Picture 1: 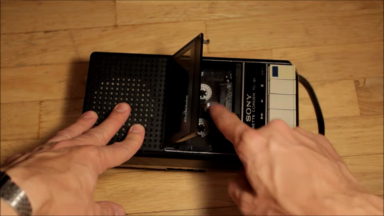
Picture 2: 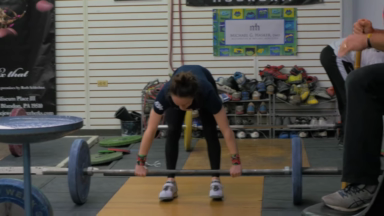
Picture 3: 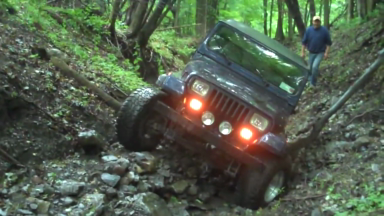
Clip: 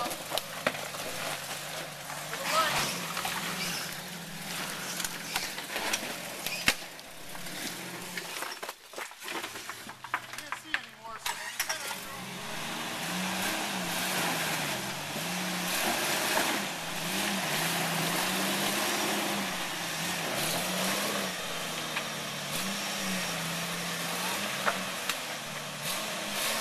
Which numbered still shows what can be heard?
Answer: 3